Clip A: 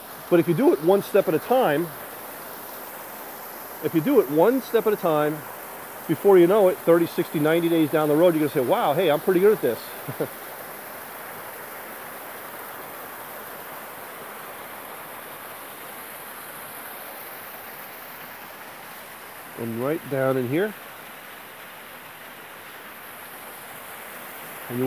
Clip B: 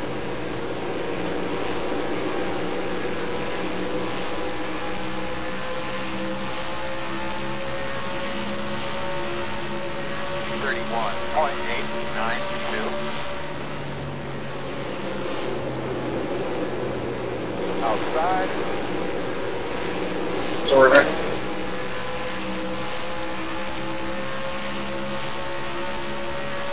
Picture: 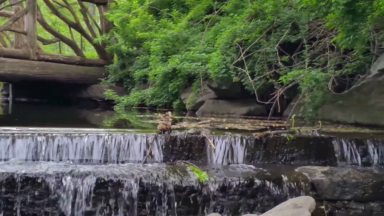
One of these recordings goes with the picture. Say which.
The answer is A